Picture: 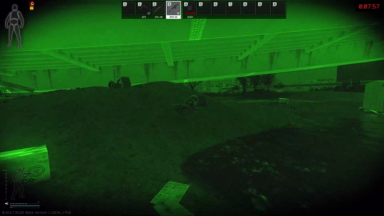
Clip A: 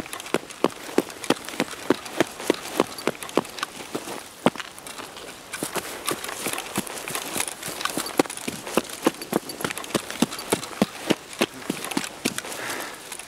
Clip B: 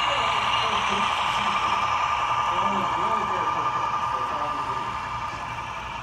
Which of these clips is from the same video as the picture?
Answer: A